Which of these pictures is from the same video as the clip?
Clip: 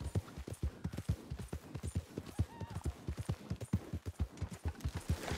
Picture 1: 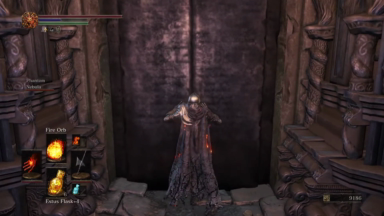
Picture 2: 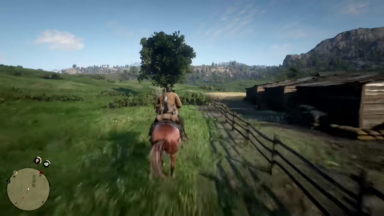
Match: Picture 2